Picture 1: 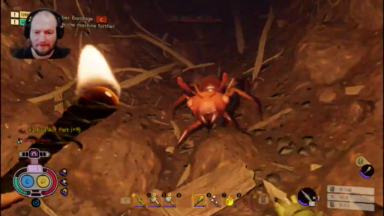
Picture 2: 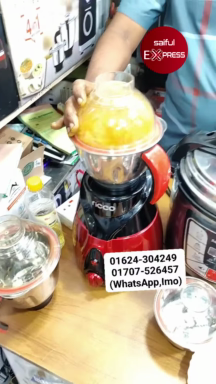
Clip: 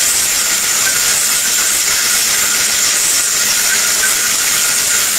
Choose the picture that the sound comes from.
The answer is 2